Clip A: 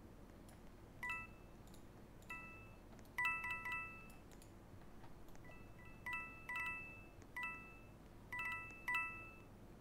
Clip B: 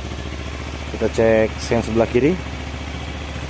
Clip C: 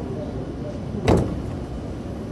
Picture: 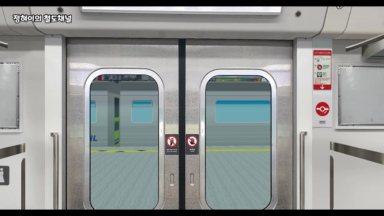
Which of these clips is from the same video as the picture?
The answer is C